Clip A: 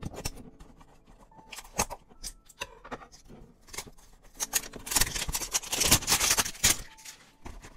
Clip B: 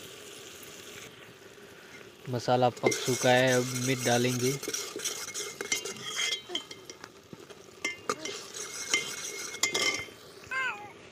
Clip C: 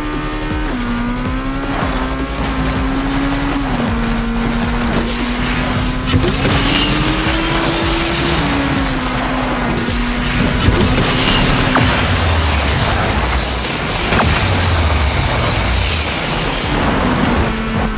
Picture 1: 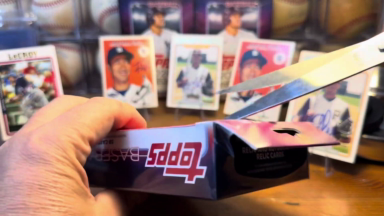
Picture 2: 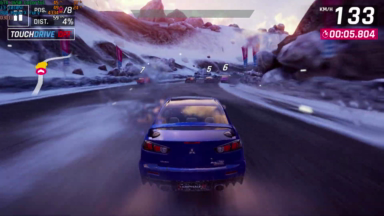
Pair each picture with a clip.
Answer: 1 A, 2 C